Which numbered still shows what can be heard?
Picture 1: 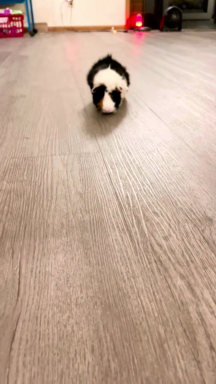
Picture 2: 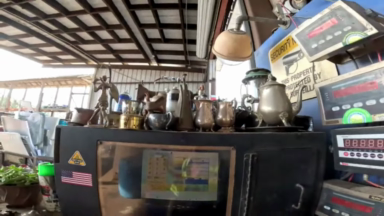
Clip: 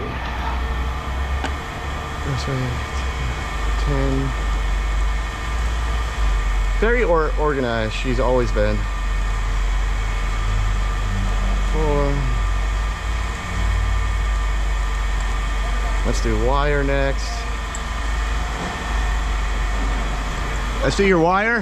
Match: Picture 2